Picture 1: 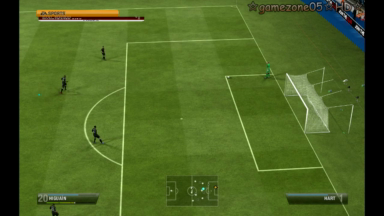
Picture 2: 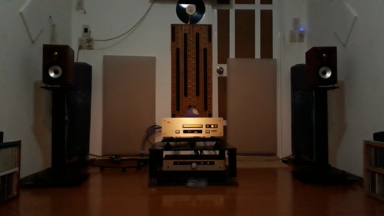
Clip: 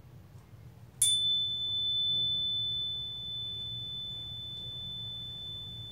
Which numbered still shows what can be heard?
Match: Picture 2